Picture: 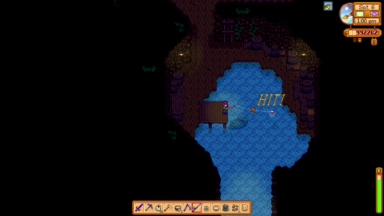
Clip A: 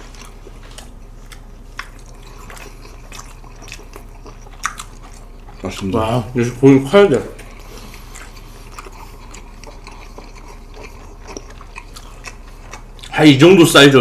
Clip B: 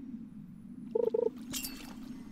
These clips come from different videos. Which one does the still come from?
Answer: B